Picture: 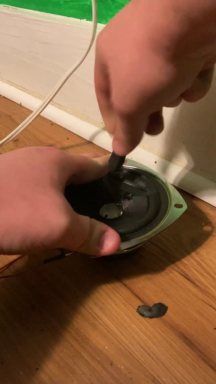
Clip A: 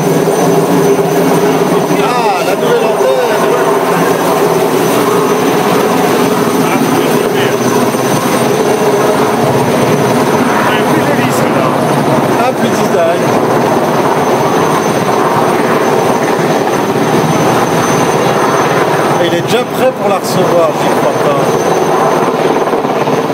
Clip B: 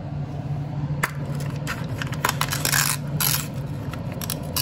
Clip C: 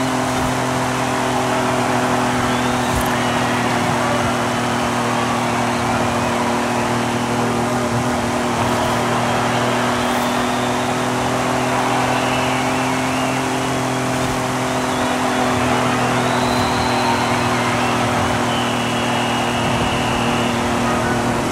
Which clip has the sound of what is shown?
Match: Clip B